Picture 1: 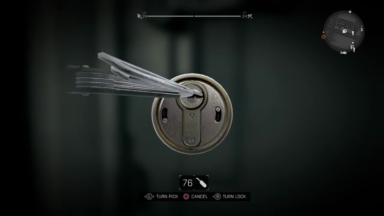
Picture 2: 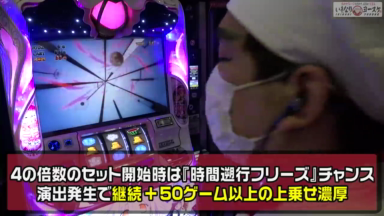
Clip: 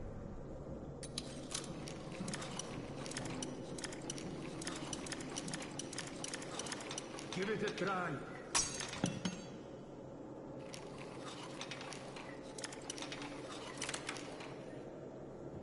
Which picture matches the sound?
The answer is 1